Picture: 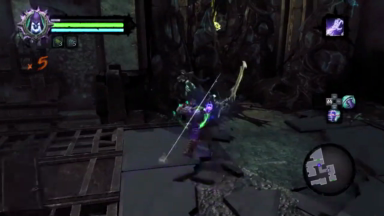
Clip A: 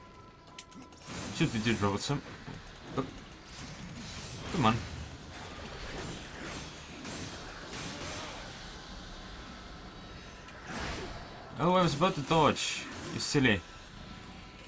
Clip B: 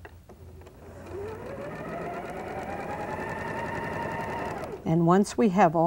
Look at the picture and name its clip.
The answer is A